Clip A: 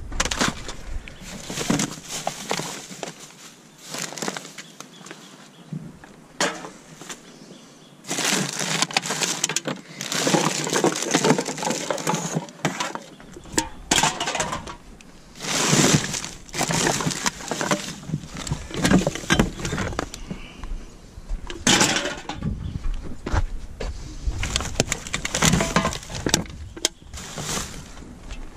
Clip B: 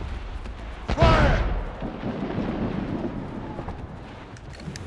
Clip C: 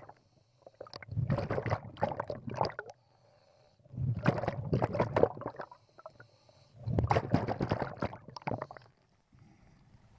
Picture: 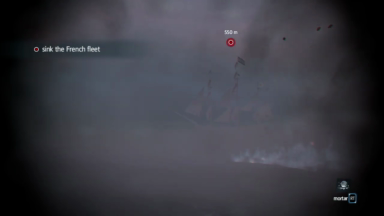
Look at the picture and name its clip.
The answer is B